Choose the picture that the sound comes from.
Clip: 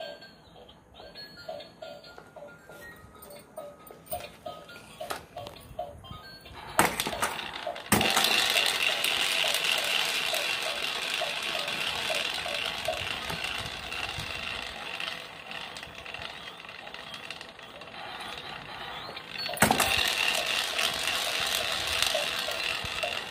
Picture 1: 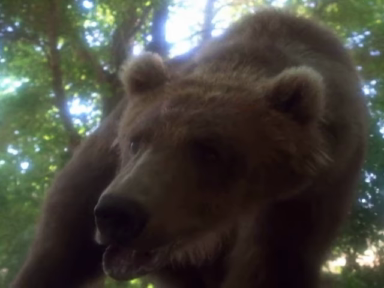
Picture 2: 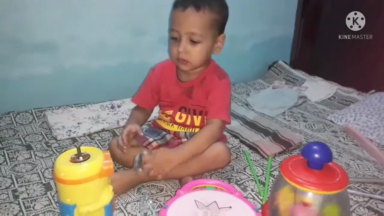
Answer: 2